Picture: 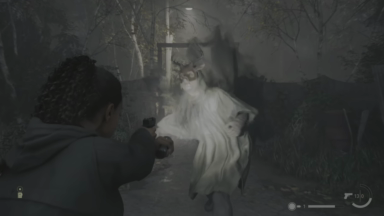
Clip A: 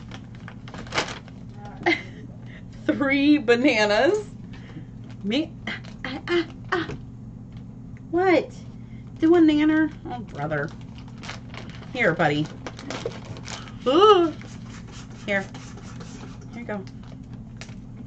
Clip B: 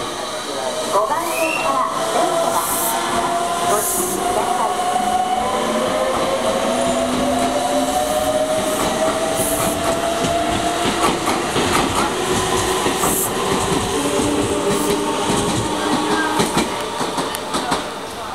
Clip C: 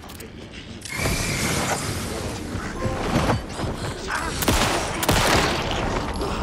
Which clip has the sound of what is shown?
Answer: C